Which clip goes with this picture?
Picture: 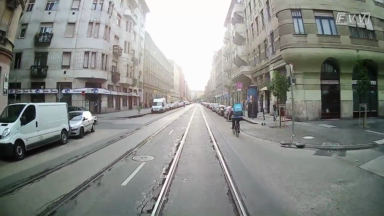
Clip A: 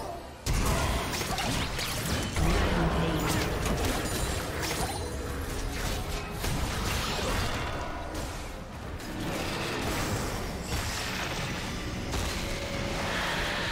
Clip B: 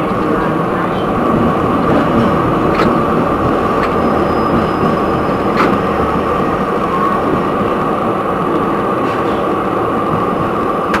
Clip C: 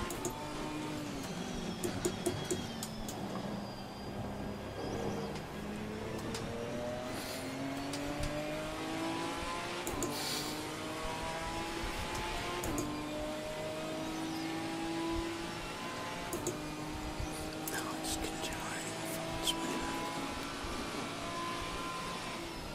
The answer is B